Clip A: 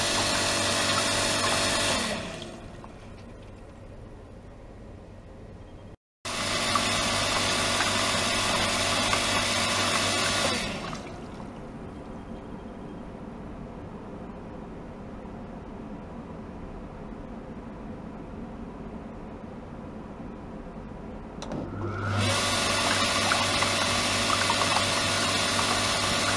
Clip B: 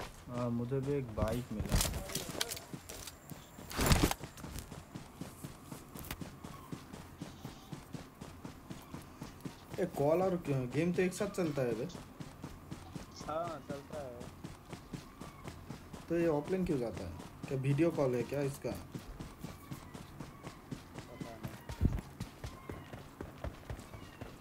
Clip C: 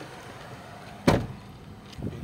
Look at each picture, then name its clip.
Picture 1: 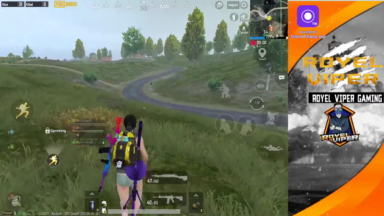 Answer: B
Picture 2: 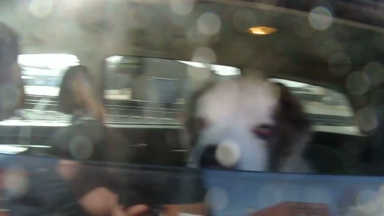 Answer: C